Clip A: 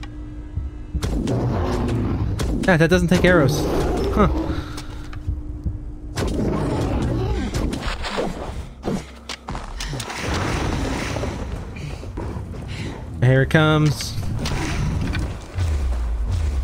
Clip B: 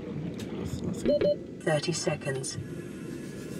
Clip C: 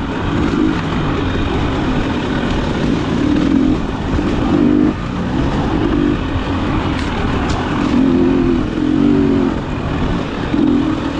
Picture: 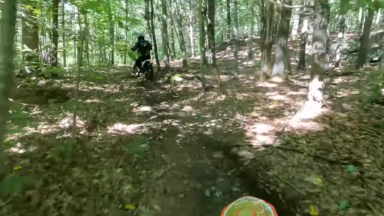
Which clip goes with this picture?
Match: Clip C